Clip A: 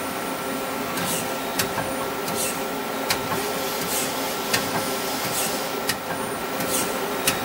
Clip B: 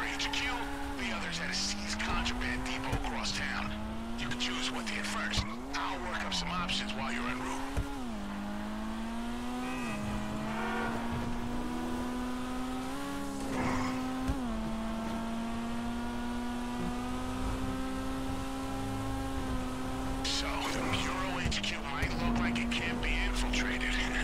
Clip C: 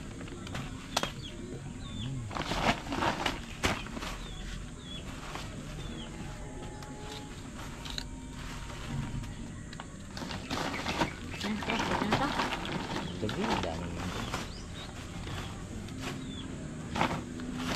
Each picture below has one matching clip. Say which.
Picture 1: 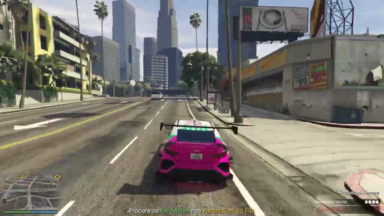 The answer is B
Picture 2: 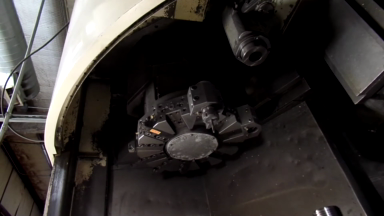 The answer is A